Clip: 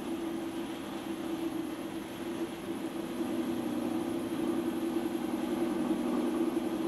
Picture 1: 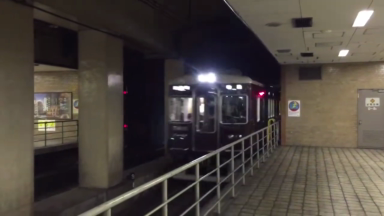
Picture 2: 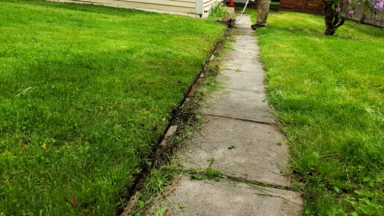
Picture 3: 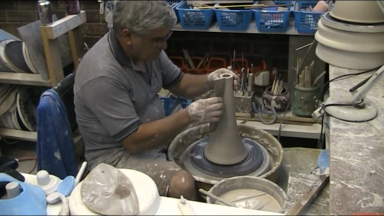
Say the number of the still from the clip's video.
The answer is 3